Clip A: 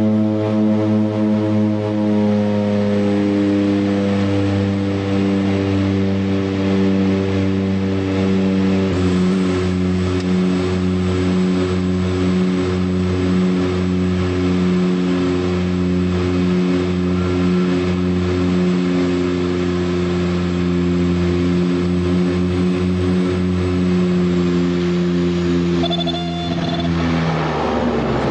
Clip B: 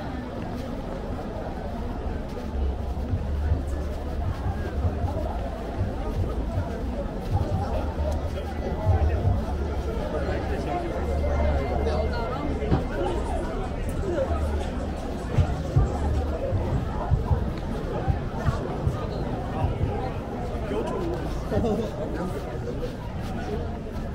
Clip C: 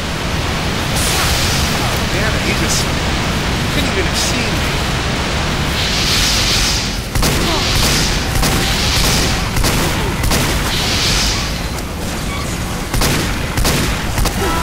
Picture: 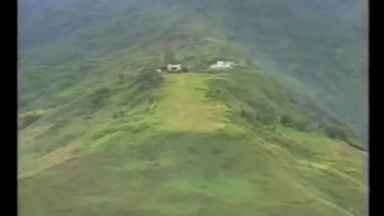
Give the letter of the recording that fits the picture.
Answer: A